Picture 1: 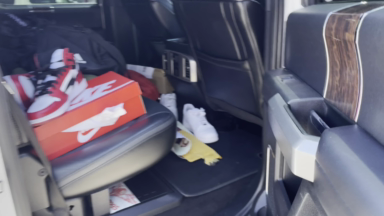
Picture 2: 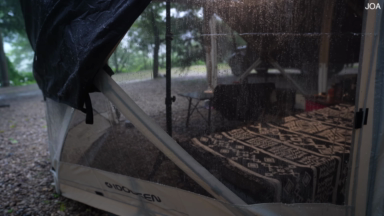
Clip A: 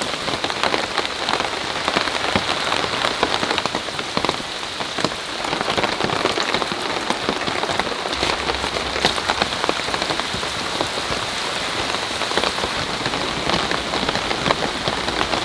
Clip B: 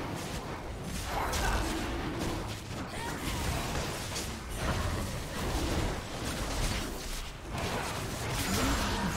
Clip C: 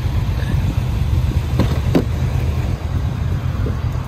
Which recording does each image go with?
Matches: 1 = C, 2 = A